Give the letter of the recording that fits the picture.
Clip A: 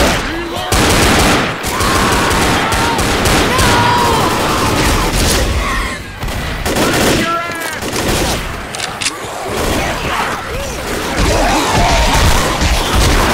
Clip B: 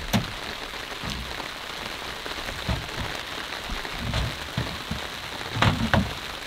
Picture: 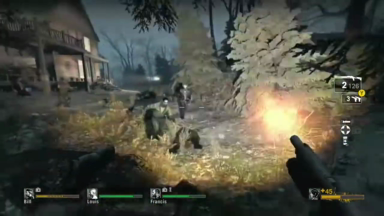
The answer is A